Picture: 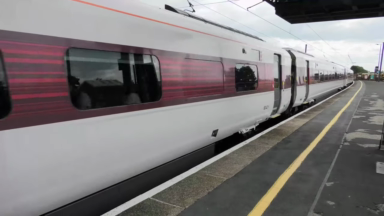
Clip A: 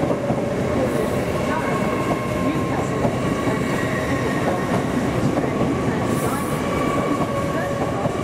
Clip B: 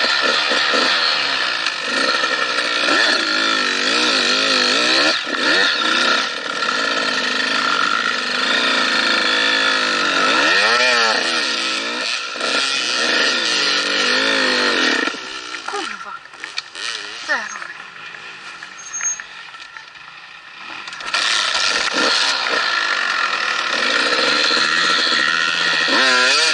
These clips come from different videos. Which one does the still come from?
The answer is A